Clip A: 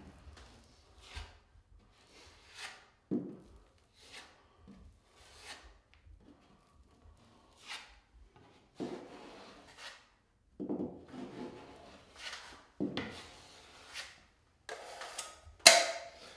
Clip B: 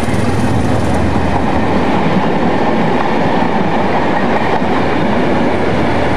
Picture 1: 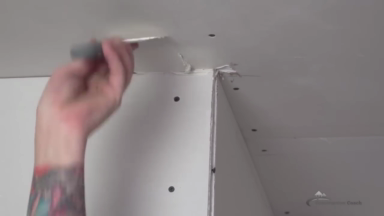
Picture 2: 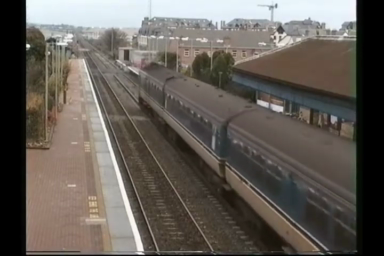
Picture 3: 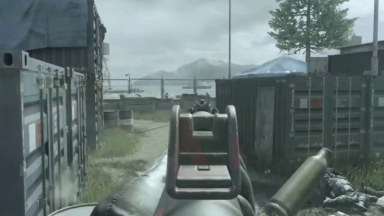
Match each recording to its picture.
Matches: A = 1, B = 2